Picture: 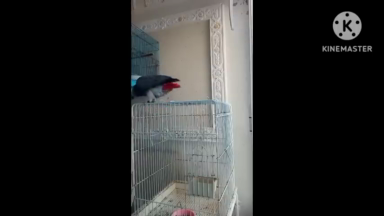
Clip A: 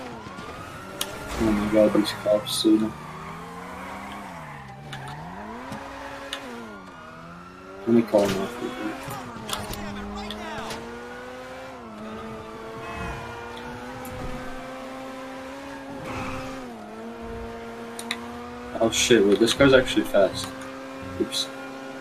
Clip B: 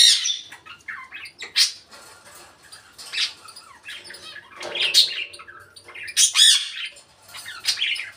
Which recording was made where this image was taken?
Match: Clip B